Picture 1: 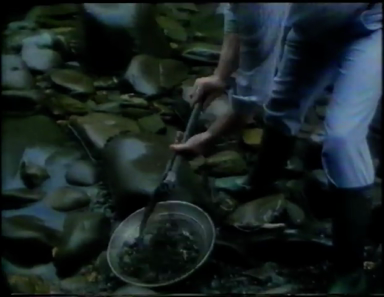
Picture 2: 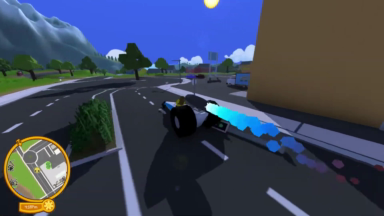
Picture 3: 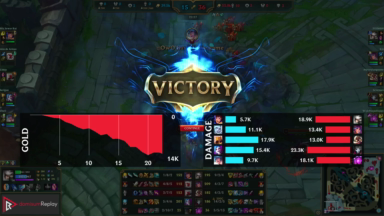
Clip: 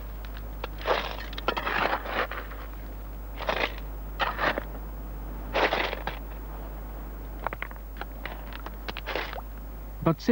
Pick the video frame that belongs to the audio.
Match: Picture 1